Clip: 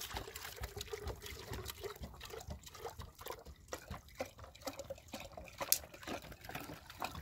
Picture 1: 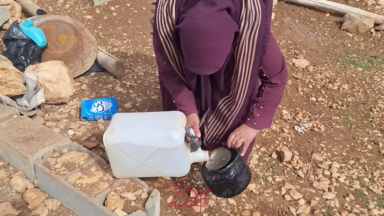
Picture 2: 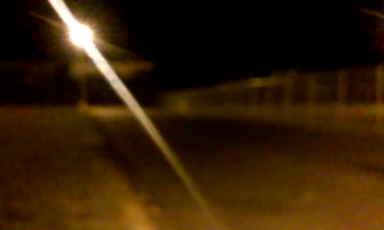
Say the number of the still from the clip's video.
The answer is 1